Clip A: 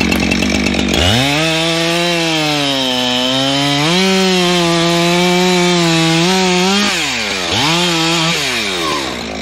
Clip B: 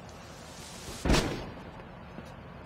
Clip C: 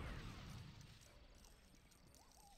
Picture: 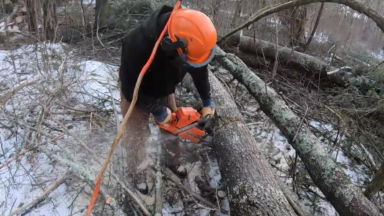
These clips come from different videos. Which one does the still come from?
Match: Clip A